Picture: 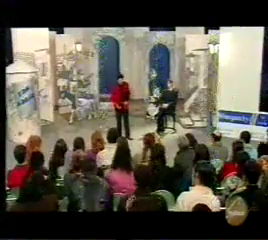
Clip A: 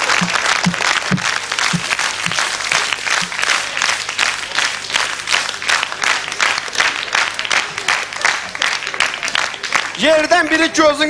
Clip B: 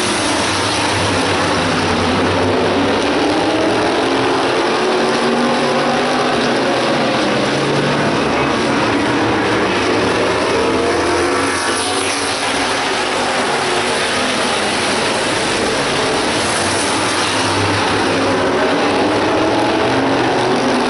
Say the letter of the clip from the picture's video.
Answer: A